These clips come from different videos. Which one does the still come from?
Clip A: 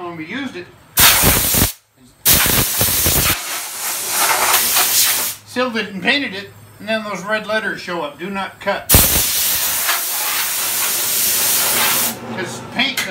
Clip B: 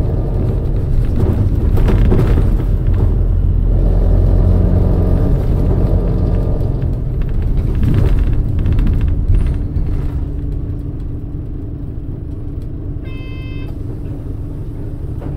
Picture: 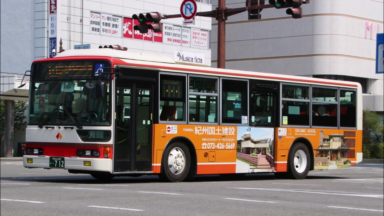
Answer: B